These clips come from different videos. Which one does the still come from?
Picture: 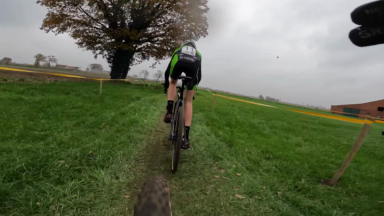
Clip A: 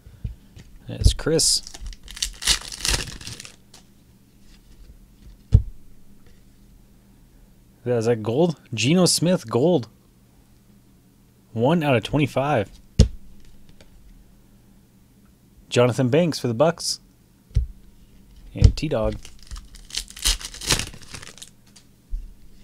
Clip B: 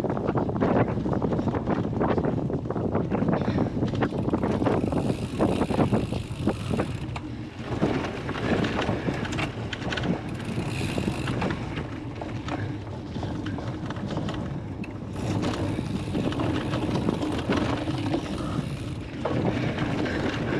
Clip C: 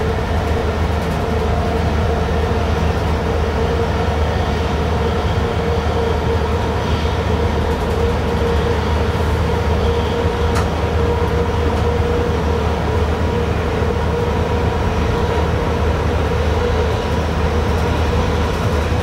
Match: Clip B